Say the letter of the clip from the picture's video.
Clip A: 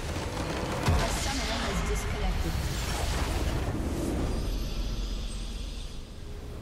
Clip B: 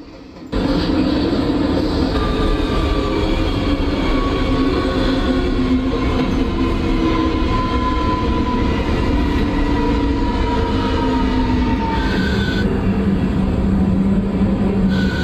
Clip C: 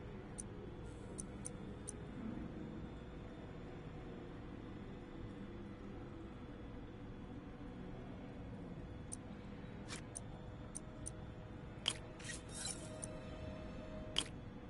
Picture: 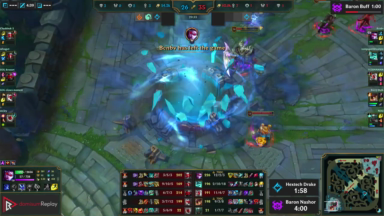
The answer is A